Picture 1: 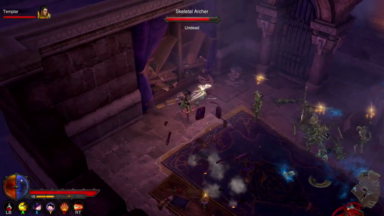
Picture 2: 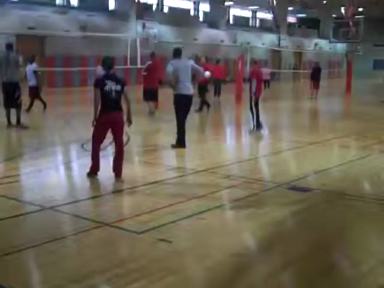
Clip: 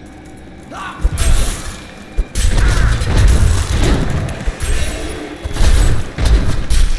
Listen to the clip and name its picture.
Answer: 1